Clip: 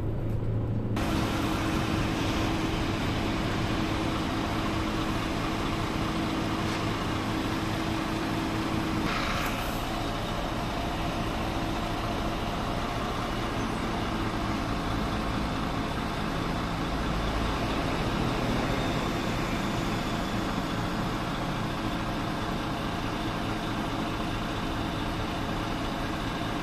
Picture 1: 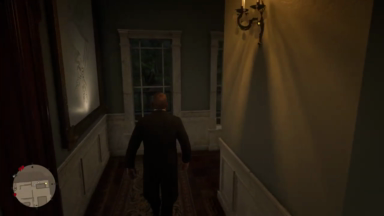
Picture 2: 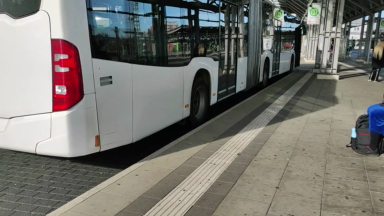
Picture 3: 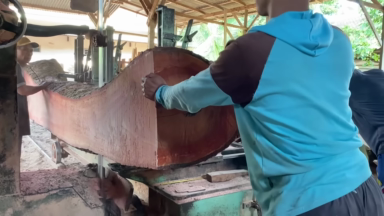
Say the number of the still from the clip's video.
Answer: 2